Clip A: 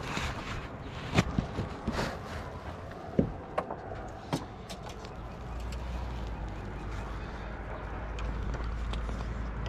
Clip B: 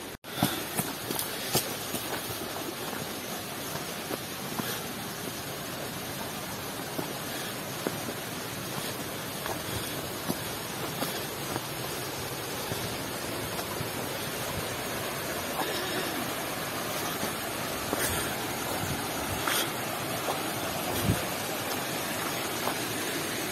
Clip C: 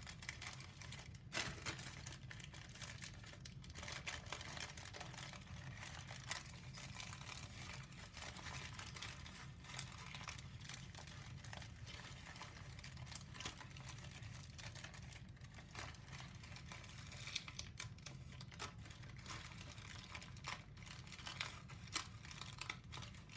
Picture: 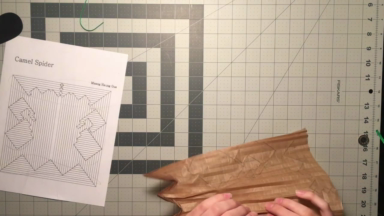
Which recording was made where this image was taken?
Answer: C